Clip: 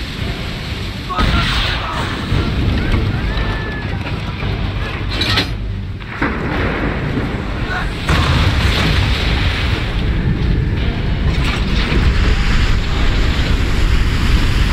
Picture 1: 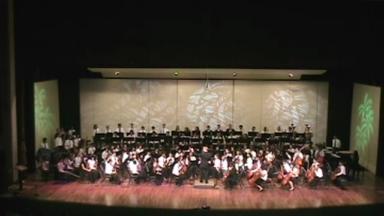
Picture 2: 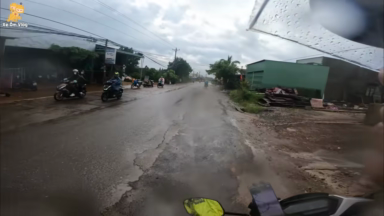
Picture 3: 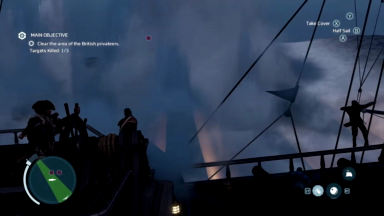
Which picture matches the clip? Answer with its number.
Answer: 3